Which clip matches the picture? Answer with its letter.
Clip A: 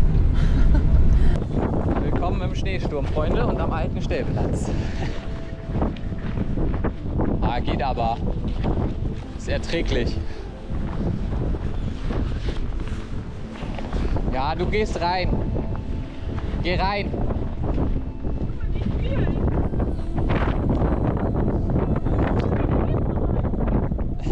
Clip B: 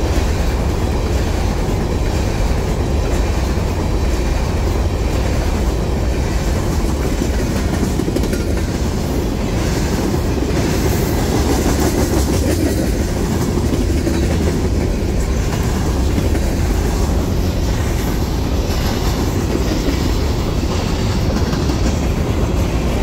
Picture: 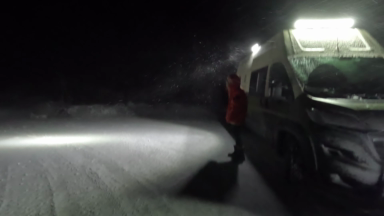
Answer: A